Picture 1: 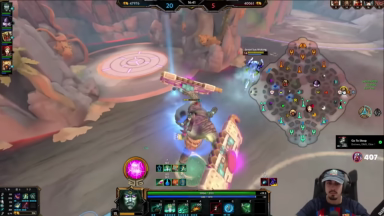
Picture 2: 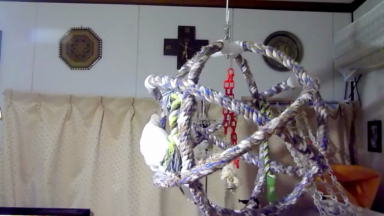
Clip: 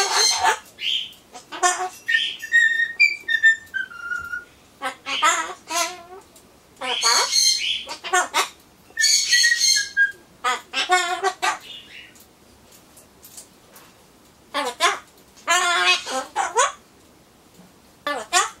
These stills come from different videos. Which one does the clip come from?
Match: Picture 2